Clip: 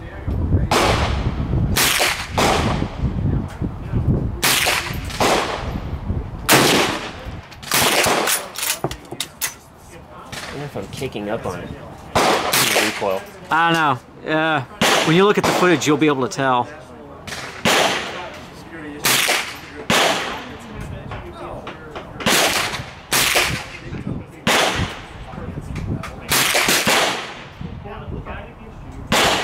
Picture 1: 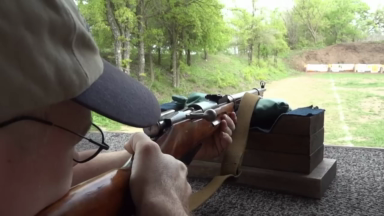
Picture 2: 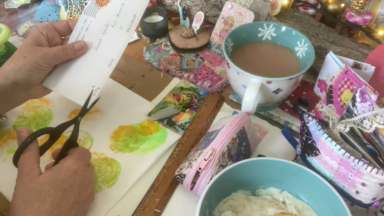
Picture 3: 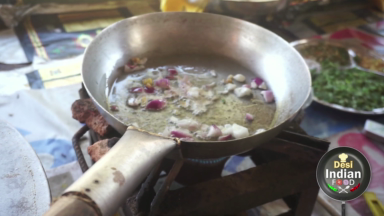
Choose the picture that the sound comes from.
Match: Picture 1